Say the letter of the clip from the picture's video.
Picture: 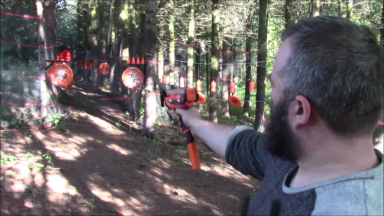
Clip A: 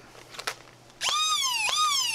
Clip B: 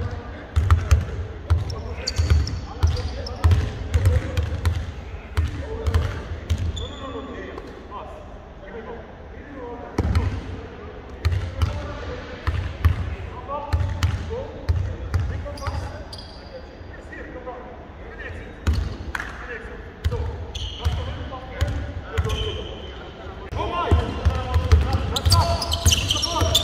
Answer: A